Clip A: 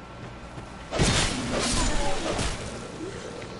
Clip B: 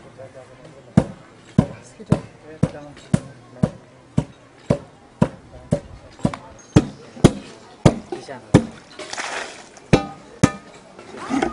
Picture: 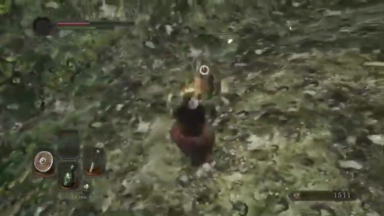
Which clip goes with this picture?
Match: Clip A